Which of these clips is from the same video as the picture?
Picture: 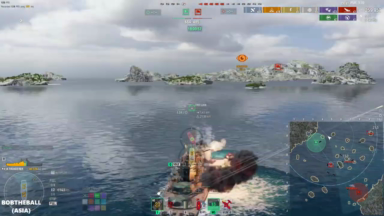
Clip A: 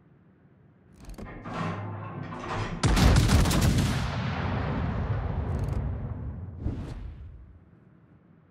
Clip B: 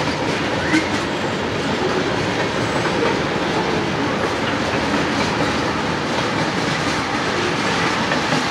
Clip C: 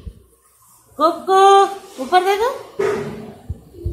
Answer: A